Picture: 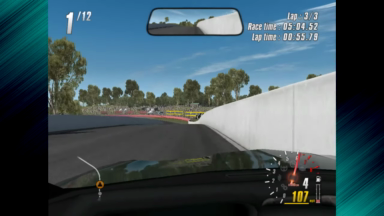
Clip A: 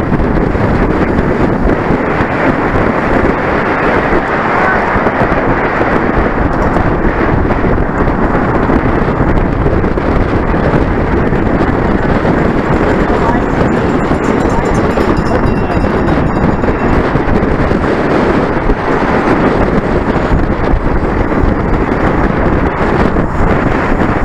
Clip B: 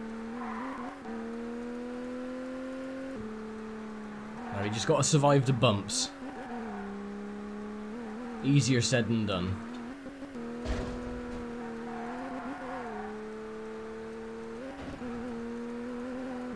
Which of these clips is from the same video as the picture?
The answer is B